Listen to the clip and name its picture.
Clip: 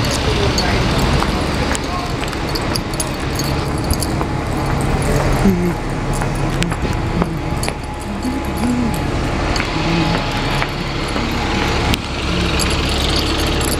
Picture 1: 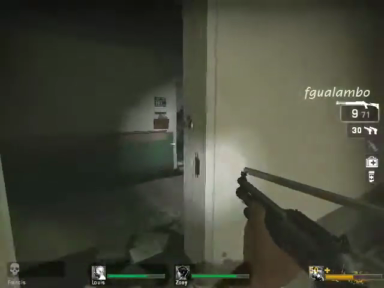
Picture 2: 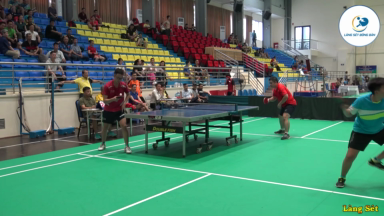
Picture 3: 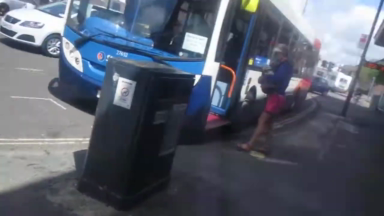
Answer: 3